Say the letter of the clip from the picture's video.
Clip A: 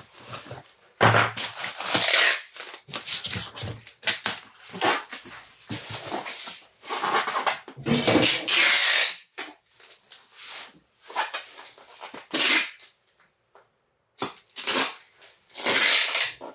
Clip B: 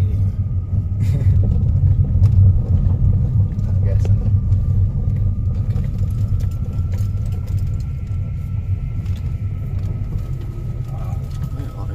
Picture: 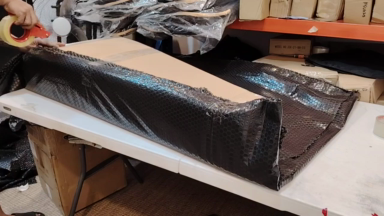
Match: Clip A